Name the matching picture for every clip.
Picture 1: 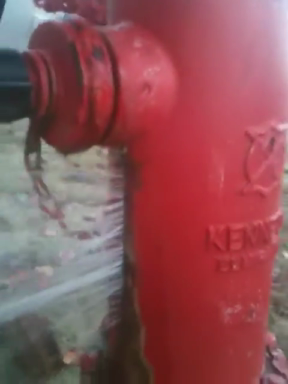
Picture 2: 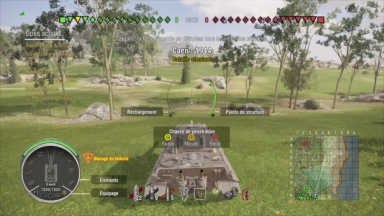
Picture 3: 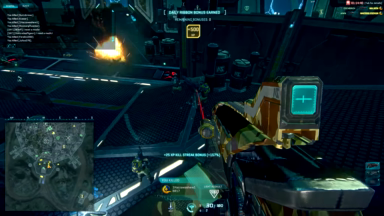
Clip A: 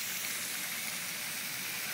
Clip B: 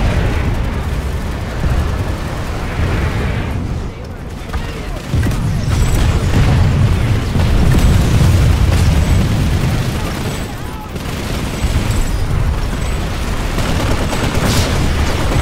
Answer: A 1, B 3